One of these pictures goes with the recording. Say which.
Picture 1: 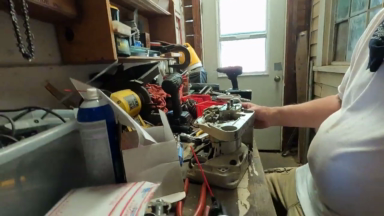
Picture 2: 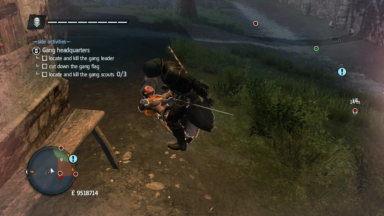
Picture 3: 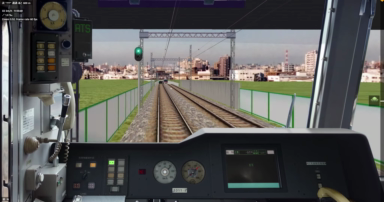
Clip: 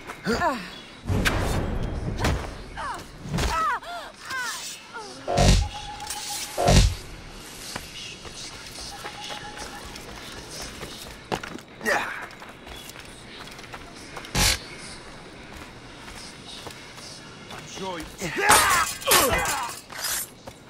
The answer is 2